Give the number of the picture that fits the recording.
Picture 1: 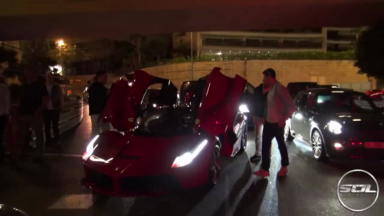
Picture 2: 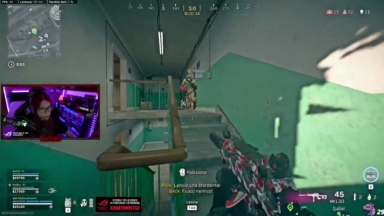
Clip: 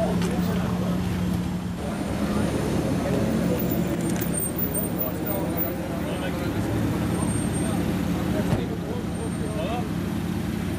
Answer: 1